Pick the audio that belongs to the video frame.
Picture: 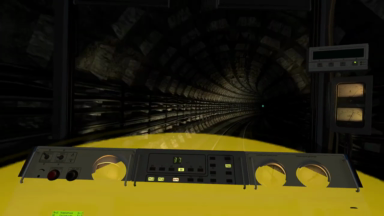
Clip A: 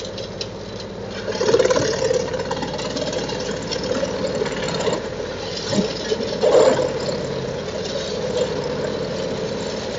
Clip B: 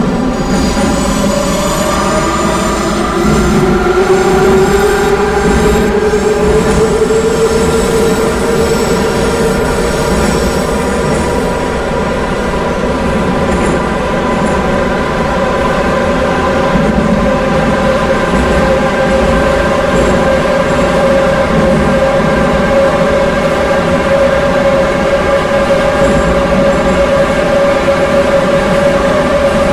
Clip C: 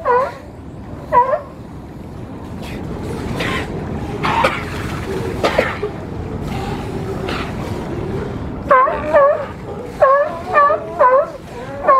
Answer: B